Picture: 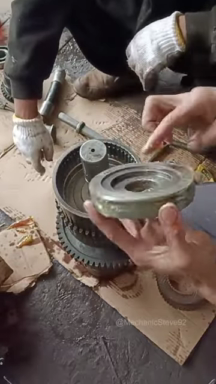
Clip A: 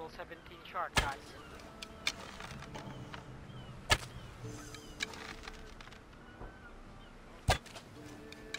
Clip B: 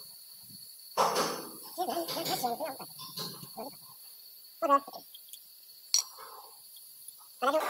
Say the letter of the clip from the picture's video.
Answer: B